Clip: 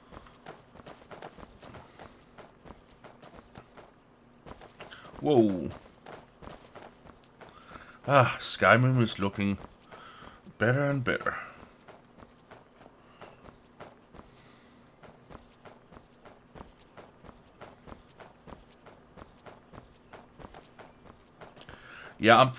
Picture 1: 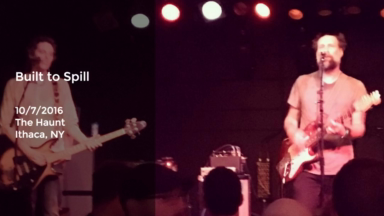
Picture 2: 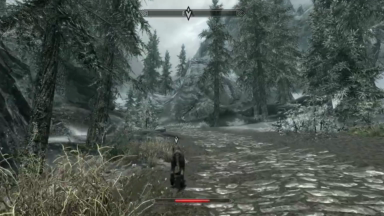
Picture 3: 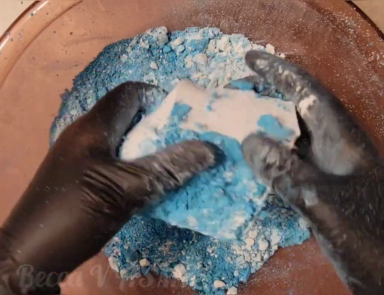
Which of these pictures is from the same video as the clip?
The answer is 2